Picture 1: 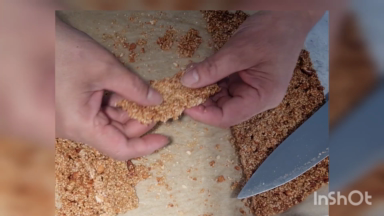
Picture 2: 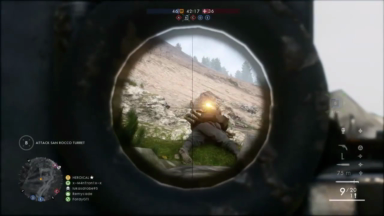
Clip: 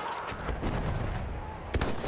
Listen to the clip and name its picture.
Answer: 2